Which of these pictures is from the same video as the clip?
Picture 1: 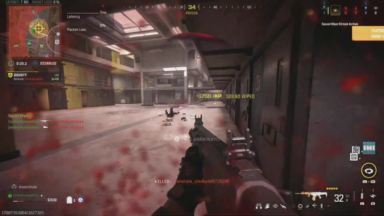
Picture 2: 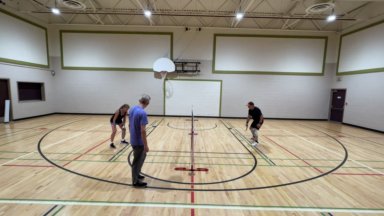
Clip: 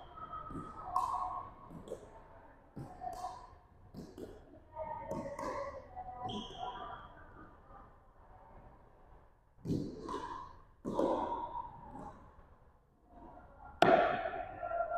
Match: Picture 2